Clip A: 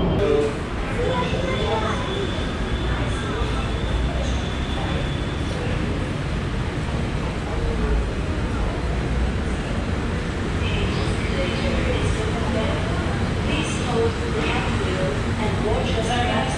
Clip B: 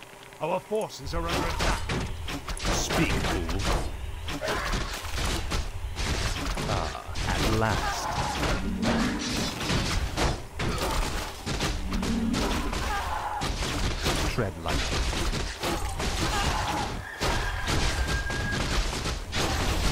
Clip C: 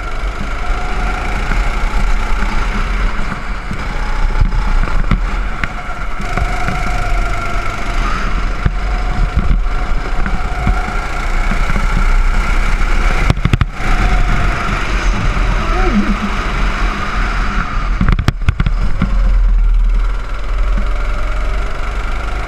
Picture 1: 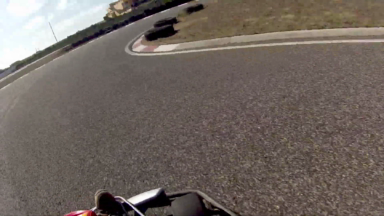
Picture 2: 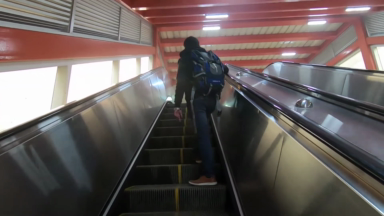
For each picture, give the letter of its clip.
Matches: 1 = C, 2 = A